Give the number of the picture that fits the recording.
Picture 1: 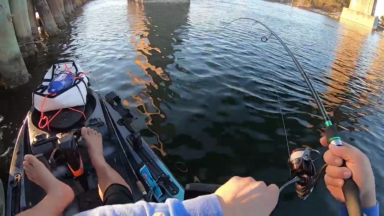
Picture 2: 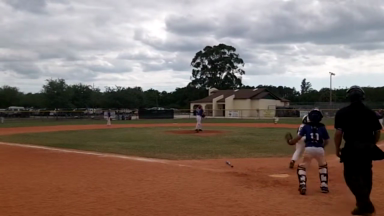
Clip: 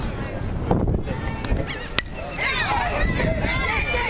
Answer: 2